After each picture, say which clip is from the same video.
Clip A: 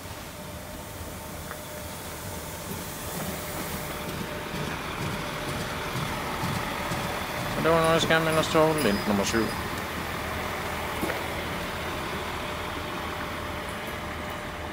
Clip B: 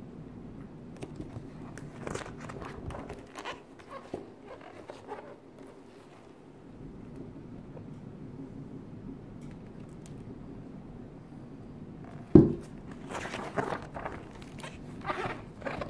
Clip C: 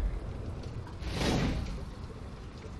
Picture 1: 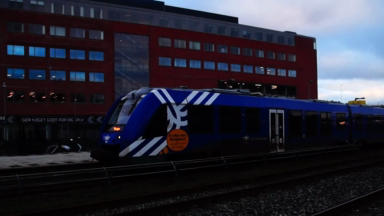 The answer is A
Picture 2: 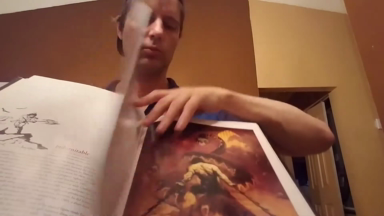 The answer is B